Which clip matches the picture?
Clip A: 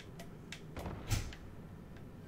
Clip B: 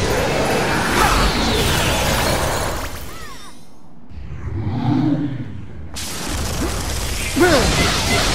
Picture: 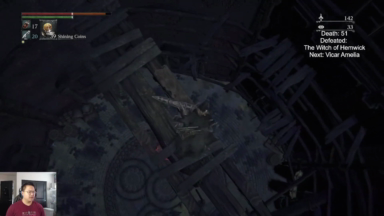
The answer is A